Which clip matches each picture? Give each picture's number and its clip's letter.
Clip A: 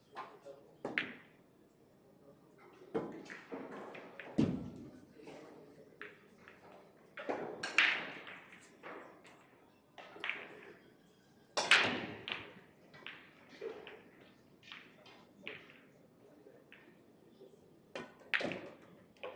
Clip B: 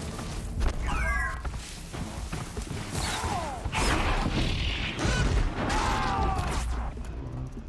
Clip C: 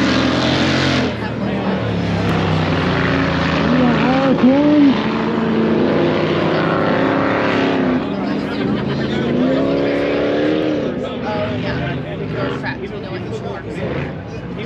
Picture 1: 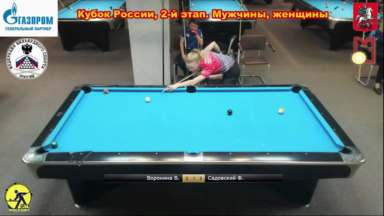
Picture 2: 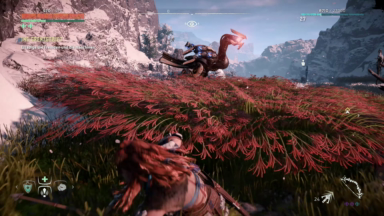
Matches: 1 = A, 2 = B